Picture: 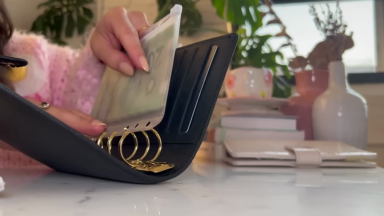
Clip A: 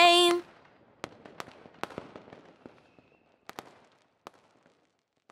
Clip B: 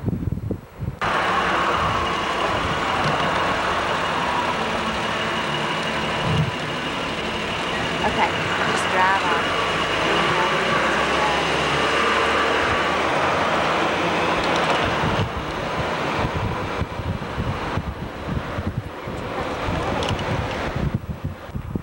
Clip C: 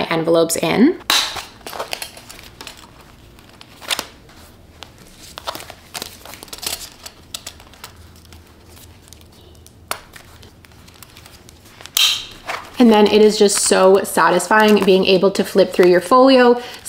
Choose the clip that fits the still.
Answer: C